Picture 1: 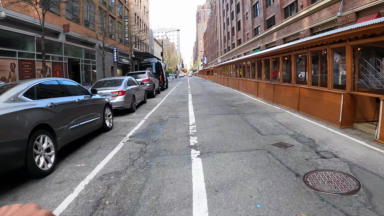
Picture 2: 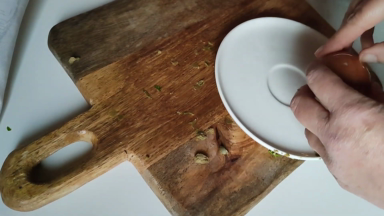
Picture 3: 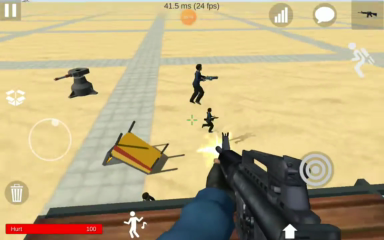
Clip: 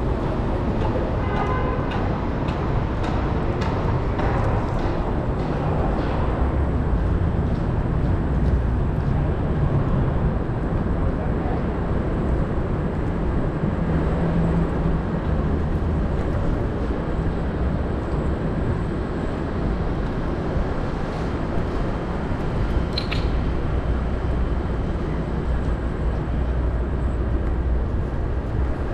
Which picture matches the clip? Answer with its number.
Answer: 1